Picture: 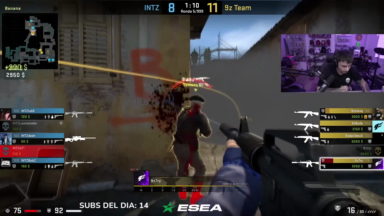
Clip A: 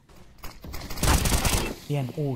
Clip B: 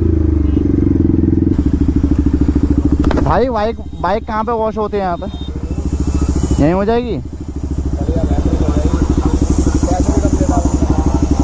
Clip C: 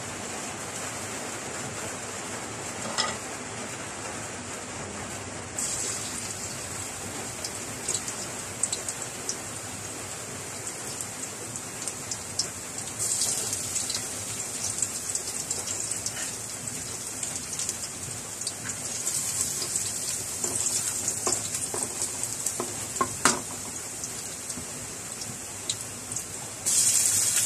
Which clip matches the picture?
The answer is A